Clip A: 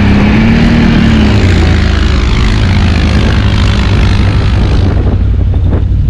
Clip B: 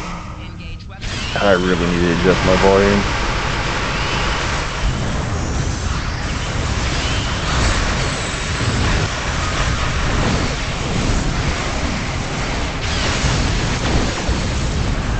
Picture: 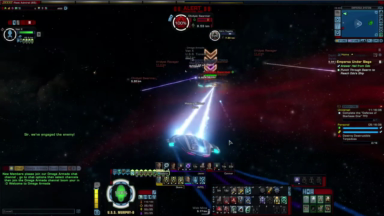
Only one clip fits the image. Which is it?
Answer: B